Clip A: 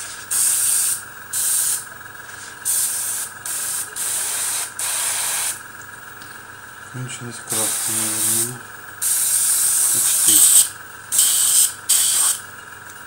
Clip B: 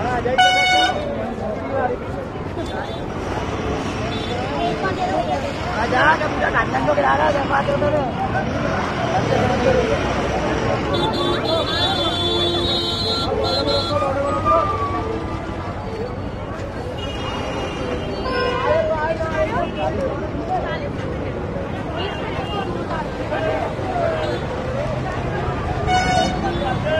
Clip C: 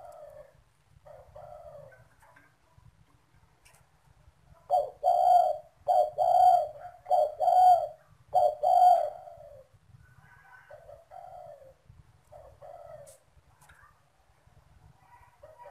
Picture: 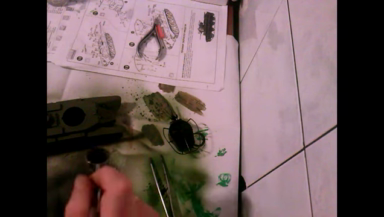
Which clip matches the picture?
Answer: A